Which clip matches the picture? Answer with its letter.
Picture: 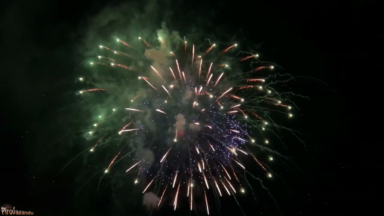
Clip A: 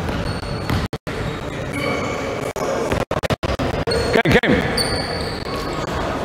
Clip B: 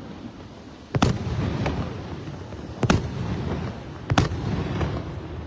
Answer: B